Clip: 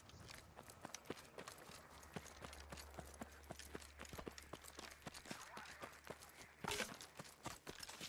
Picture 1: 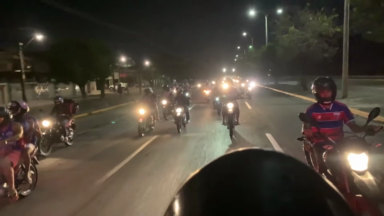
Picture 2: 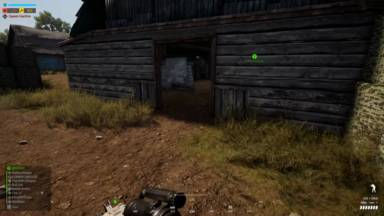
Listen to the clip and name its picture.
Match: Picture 2